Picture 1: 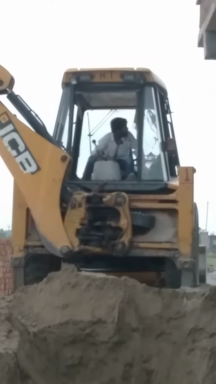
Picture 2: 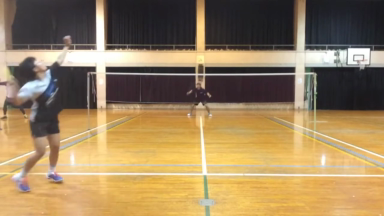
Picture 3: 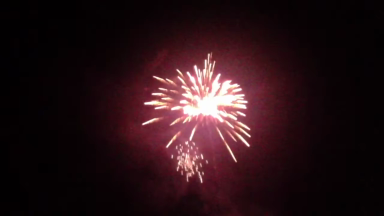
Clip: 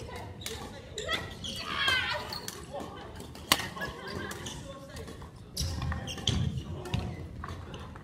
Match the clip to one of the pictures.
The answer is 2